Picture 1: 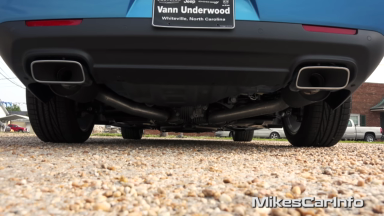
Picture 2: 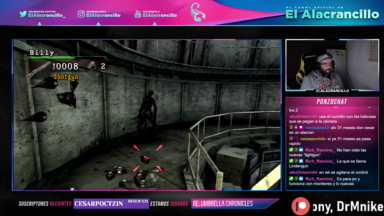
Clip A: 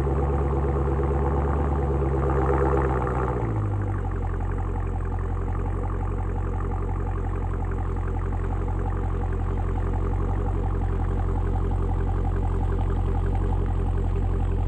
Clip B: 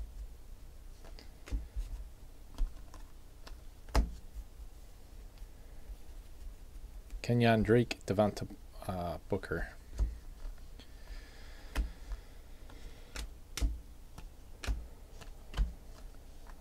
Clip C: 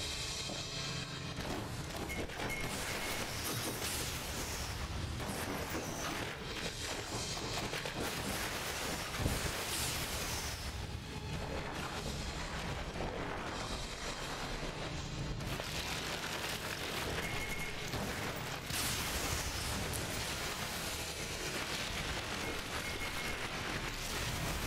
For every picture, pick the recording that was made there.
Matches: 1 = A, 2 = C